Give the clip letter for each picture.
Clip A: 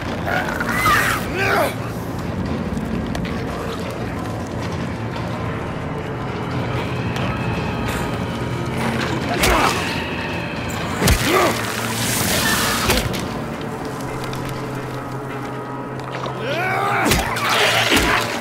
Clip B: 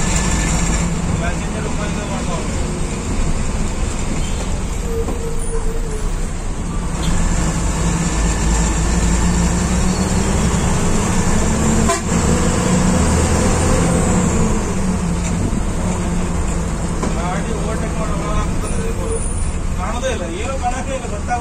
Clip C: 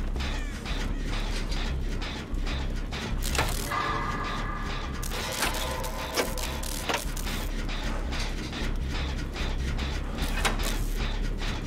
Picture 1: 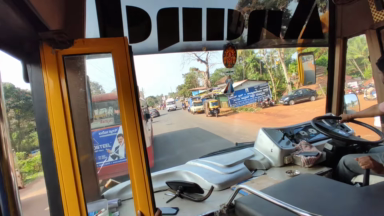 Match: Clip B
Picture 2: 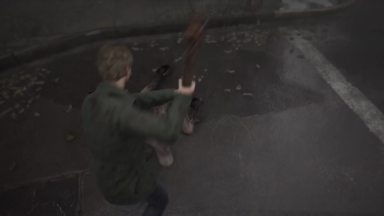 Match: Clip A